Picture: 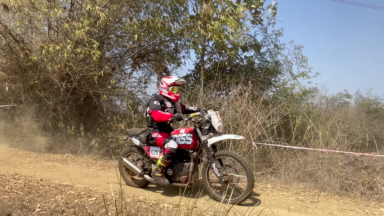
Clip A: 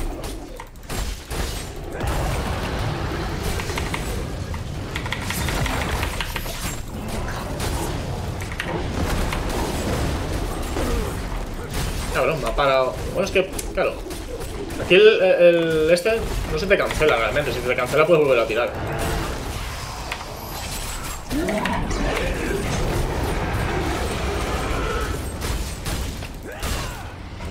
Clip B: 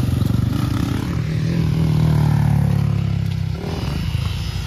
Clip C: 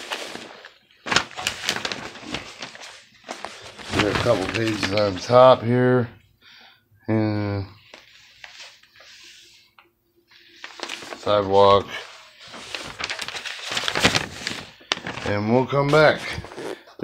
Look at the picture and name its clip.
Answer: B